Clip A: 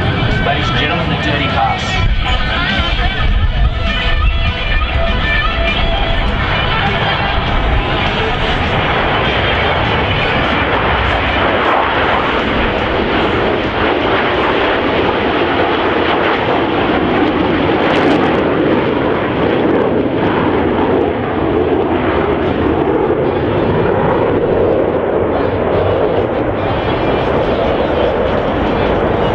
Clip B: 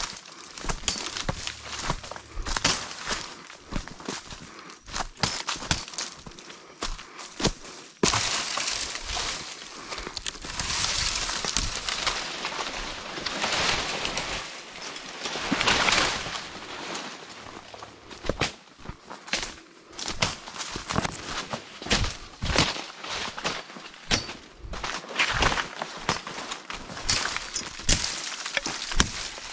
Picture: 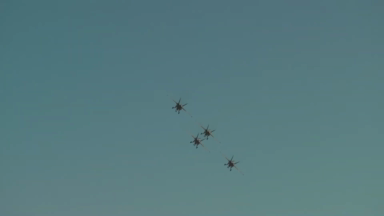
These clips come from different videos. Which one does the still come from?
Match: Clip A